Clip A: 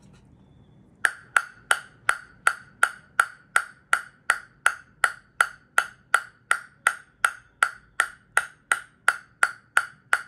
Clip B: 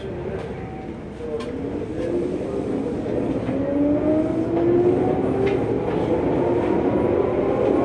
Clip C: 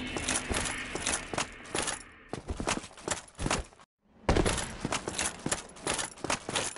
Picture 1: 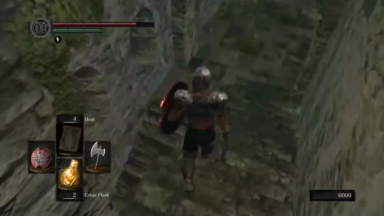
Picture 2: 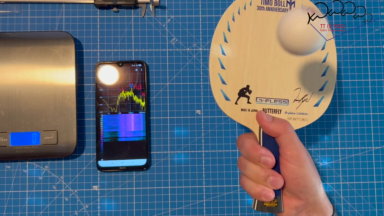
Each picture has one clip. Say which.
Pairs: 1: C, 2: A